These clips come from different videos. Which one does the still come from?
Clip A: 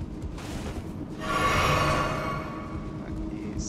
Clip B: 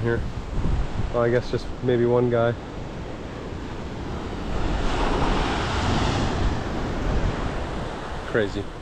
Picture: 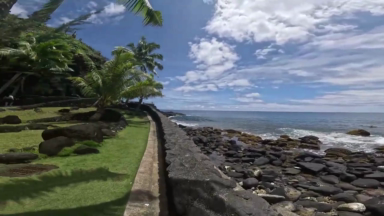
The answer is B